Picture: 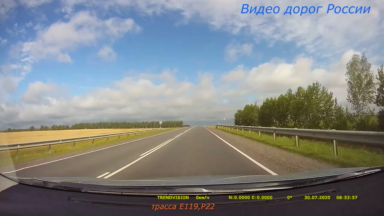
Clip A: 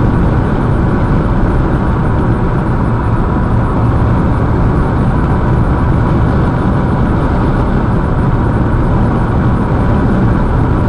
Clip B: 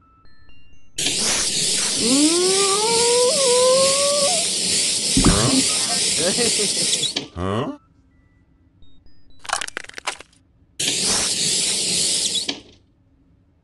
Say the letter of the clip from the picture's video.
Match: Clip A